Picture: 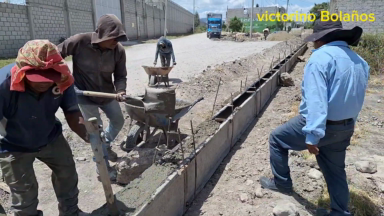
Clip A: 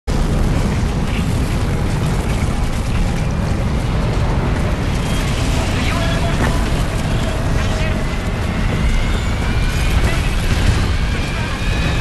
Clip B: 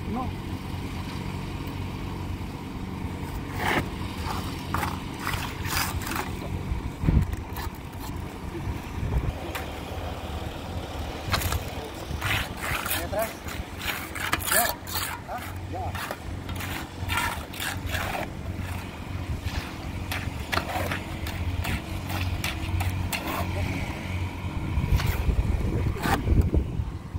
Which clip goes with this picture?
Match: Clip B